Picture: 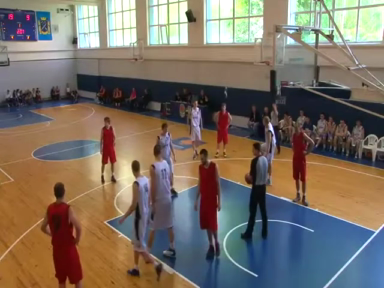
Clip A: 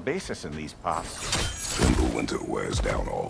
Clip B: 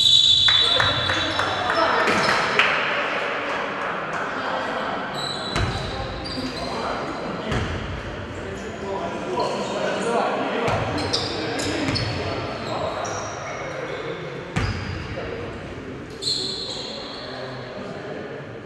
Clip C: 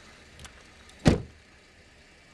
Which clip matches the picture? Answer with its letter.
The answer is B